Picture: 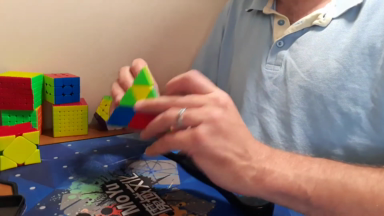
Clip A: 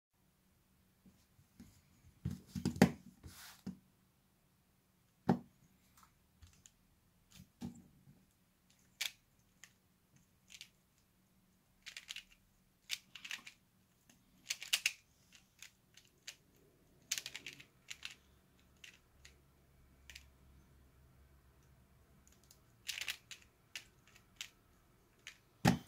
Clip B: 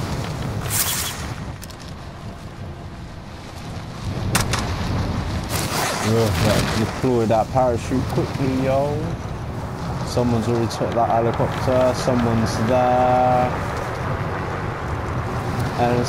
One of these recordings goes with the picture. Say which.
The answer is A